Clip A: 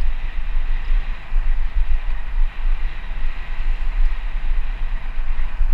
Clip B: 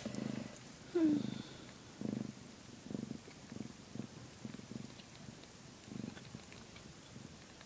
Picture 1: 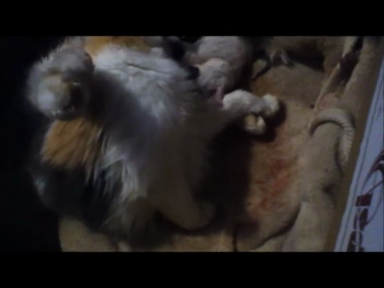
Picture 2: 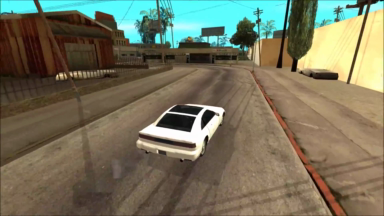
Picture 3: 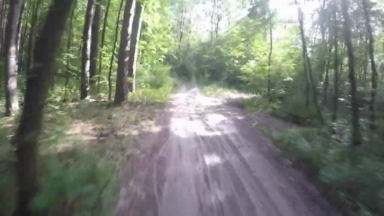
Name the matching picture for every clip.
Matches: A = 3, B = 1